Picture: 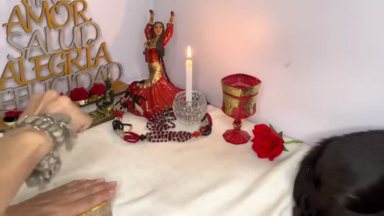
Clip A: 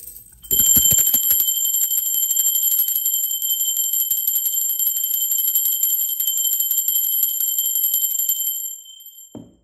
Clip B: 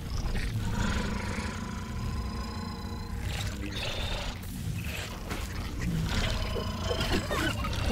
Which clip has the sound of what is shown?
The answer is A